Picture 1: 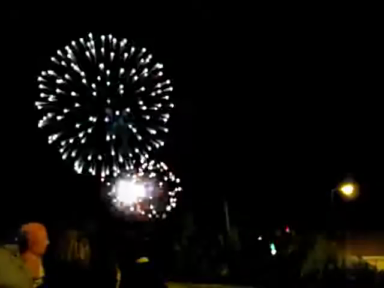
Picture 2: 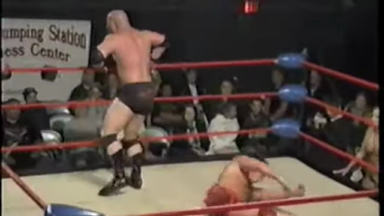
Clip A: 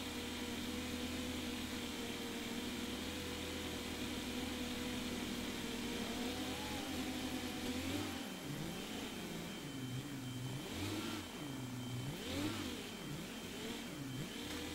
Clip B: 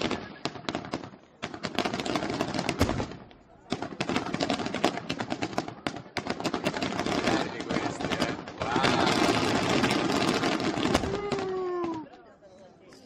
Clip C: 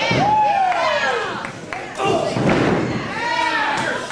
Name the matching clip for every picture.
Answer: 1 B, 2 C